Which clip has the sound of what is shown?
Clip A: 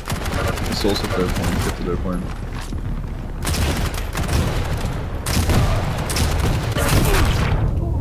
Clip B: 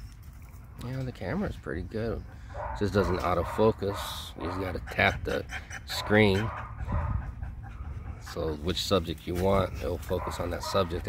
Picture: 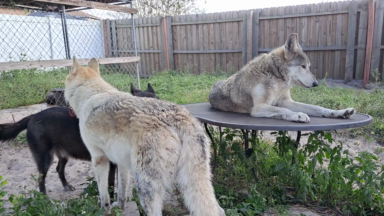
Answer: B